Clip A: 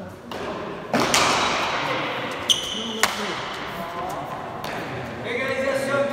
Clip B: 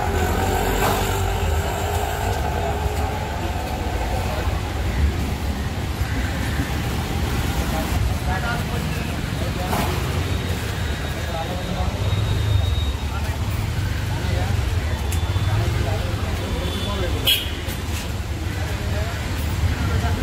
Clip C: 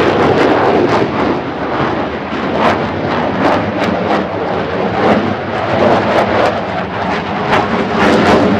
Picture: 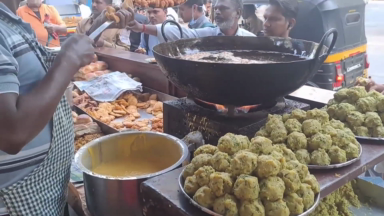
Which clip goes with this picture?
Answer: B